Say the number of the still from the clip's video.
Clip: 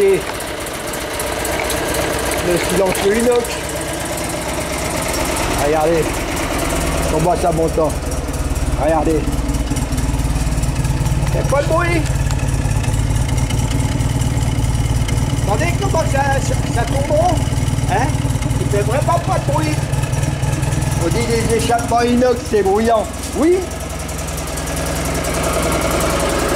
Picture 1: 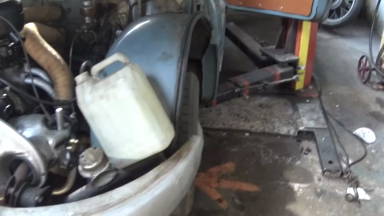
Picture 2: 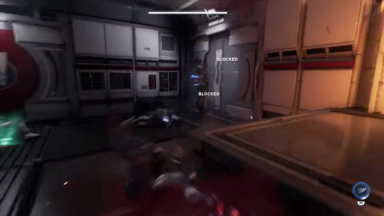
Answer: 1